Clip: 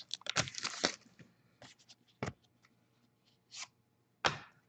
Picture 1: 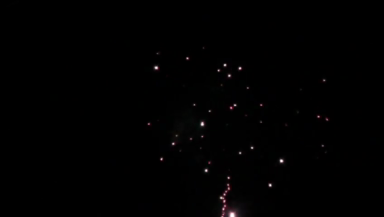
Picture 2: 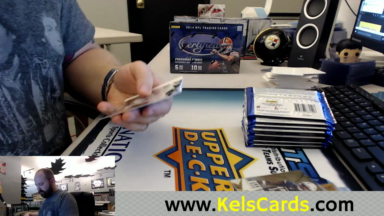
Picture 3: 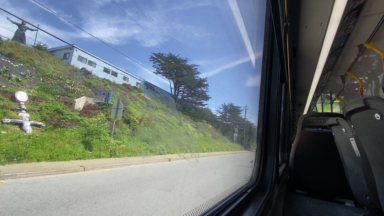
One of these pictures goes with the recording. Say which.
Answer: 2